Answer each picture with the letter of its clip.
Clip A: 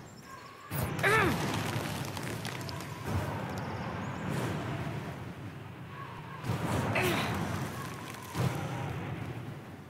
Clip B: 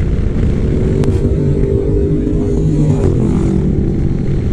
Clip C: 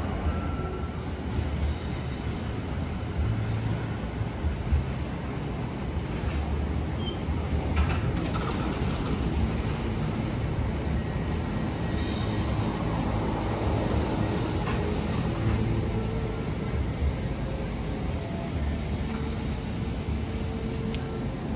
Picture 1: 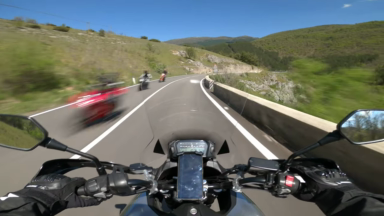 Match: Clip B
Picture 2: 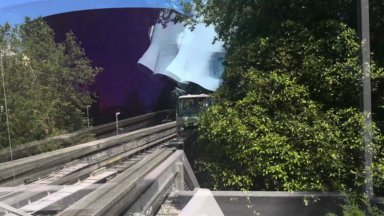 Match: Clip C